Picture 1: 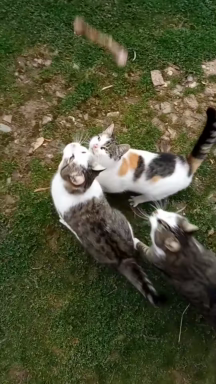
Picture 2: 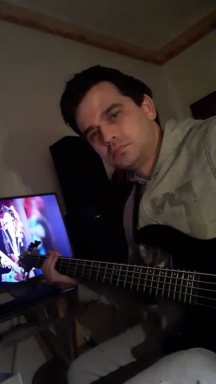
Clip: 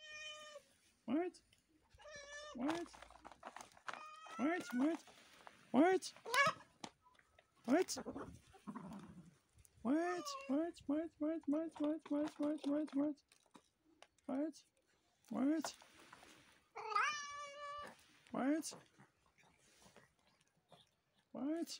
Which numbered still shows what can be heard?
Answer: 1